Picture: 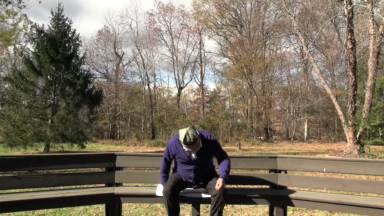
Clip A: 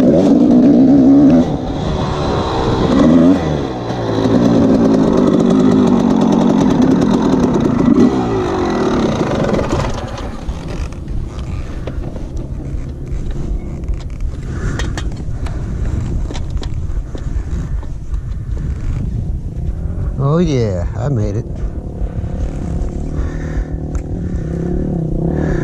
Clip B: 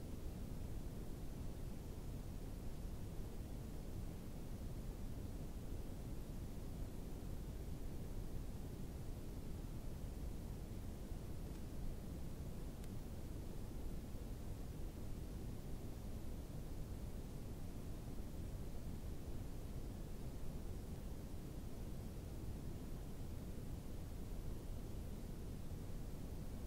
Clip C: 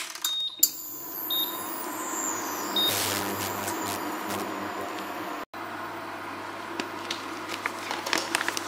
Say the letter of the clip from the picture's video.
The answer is B